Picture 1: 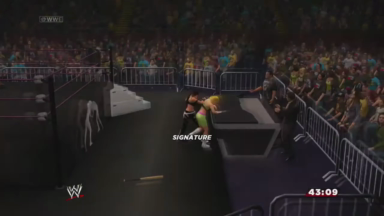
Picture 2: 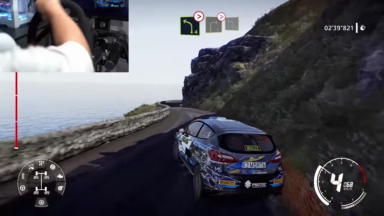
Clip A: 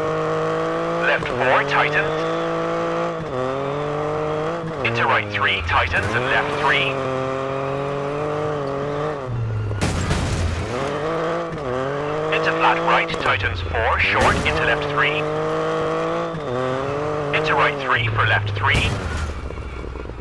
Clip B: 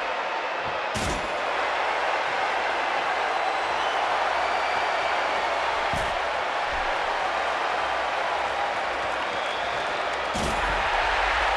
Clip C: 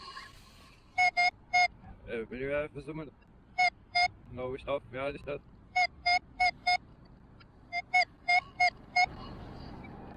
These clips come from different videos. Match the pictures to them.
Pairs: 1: B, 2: A